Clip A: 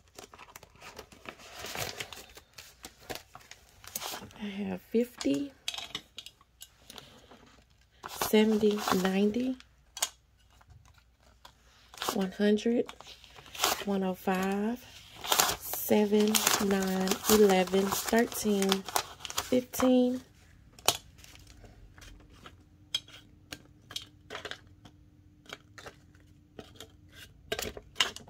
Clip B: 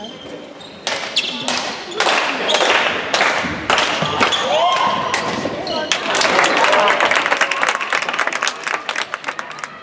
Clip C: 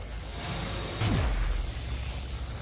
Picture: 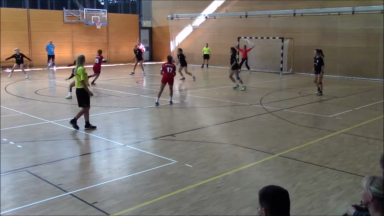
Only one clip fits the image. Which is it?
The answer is B